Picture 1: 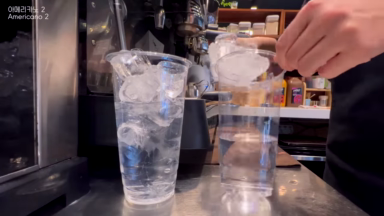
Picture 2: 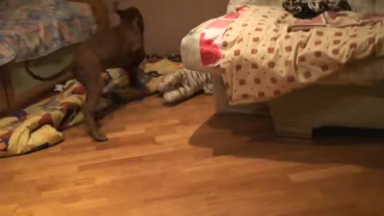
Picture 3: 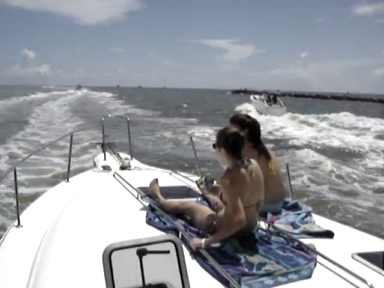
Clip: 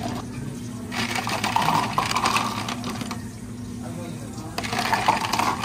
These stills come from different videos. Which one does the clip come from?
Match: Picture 1